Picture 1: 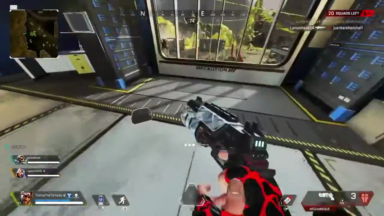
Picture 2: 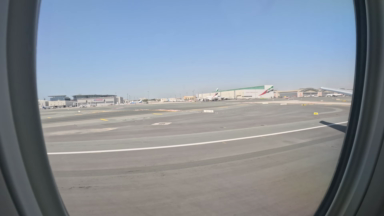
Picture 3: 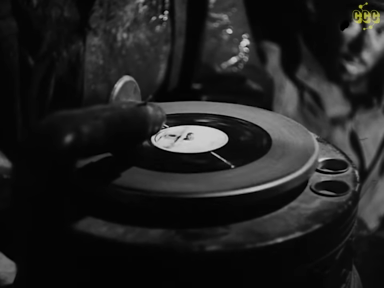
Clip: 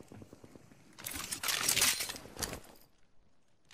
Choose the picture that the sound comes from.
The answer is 1